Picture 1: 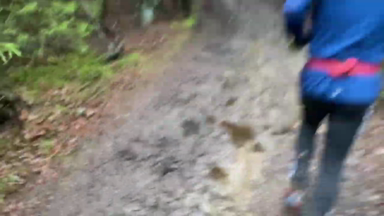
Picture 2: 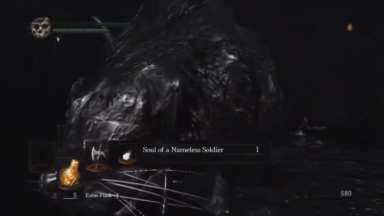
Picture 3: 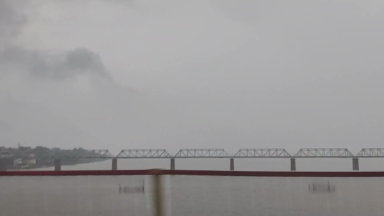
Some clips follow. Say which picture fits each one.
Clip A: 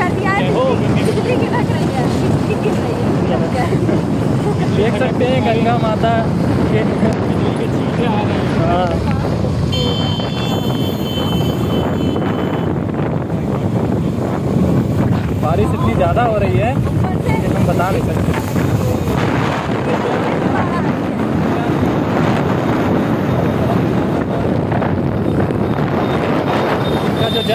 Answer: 3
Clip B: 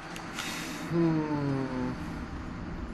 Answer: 2